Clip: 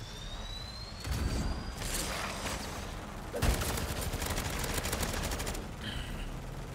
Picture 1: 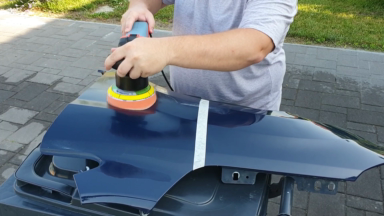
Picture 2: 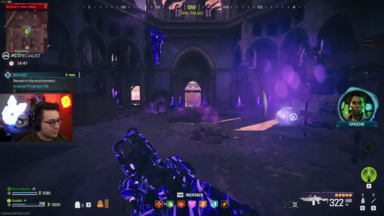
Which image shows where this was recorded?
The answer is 2